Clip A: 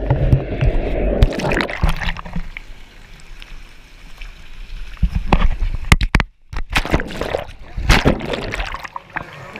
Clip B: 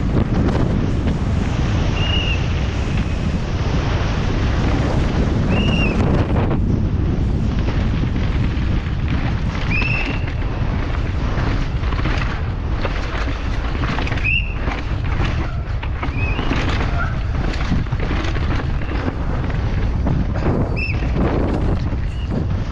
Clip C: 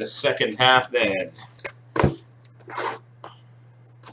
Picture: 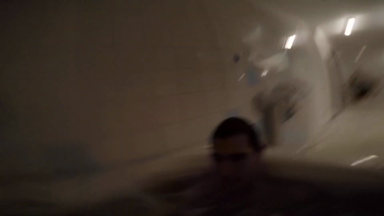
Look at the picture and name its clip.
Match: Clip A